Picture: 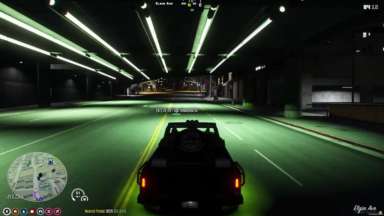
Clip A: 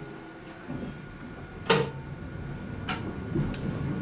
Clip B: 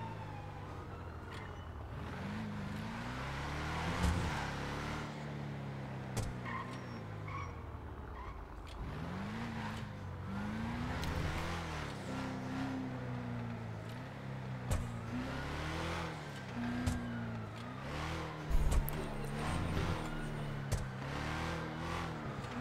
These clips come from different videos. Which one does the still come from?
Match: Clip B